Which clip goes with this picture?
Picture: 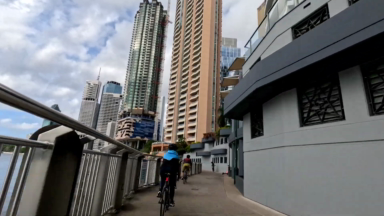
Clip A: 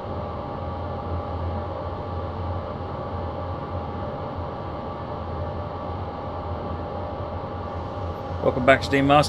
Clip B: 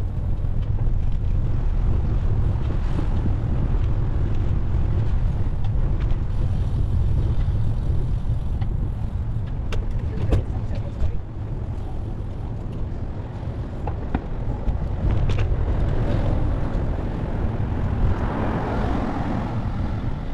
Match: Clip B